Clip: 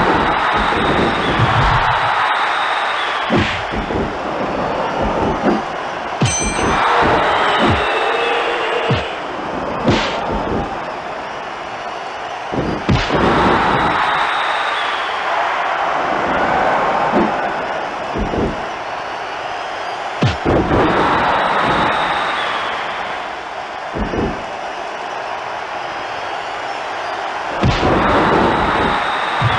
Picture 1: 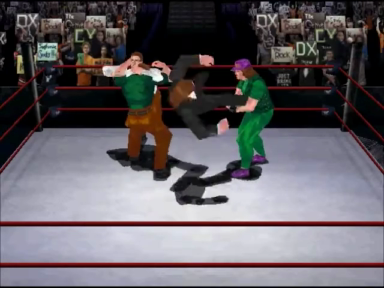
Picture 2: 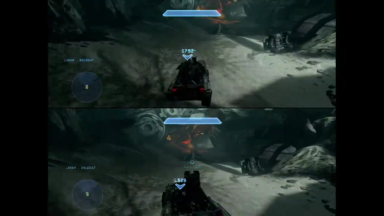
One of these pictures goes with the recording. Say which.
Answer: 1